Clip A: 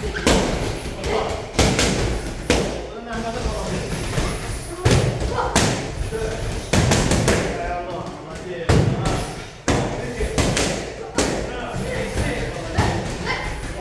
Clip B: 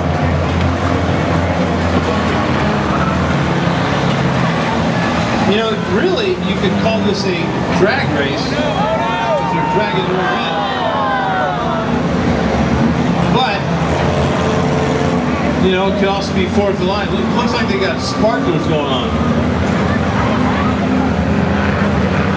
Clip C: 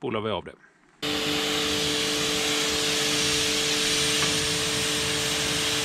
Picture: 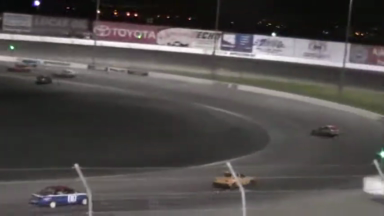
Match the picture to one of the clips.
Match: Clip B